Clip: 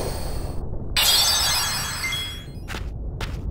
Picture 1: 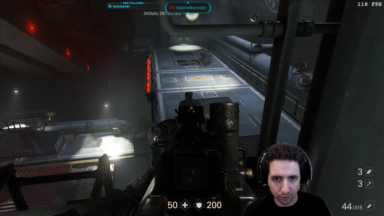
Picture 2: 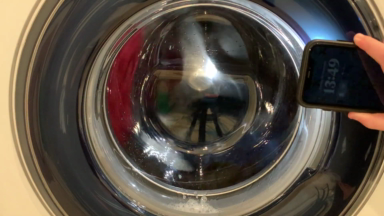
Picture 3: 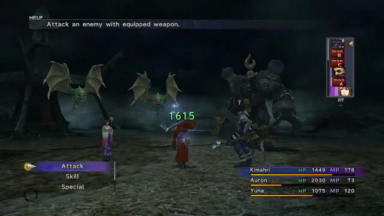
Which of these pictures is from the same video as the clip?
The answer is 3